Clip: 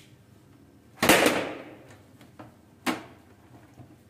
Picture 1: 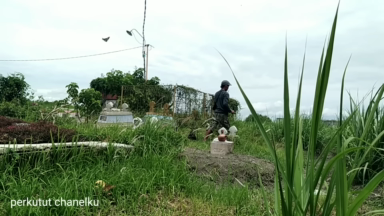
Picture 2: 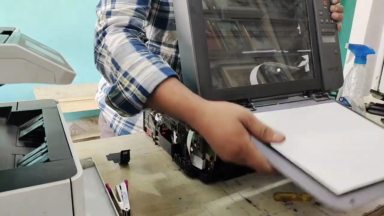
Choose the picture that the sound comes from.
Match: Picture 2